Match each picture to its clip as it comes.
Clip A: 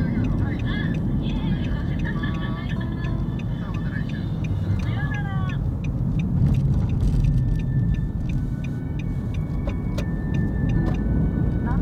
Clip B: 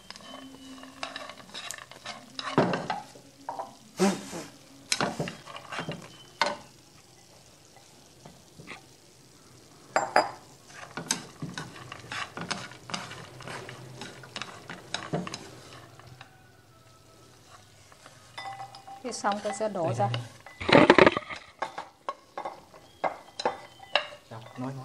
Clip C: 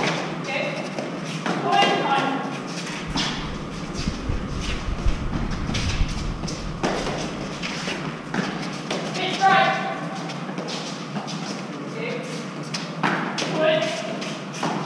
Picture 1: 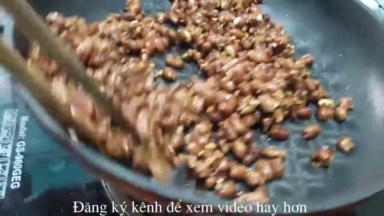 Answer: B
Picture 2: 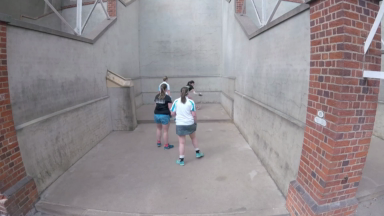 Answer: C